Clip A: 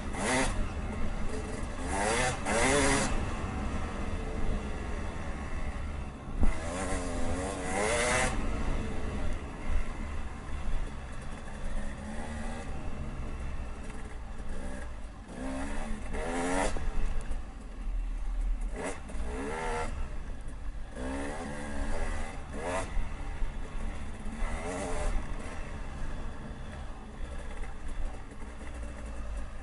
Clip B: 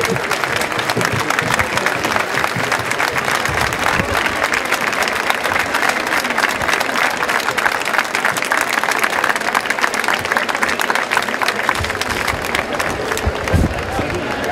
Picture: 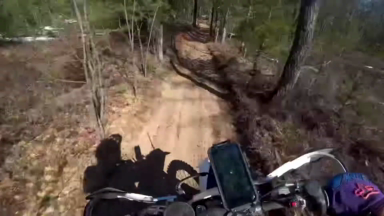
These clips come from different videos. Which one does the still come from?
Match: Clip A